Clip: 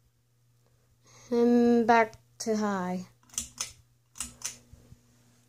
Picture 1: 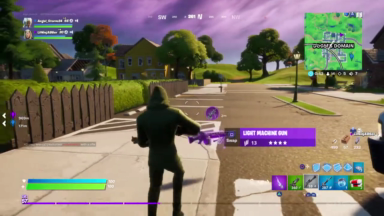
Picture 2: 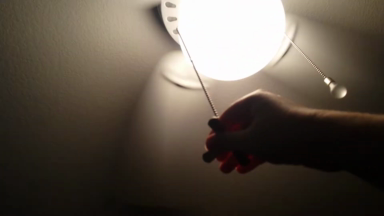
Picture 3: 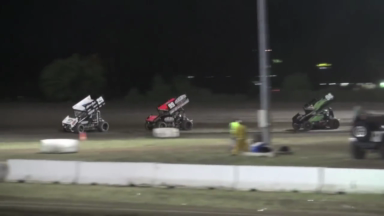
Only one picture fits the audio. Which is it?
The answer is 2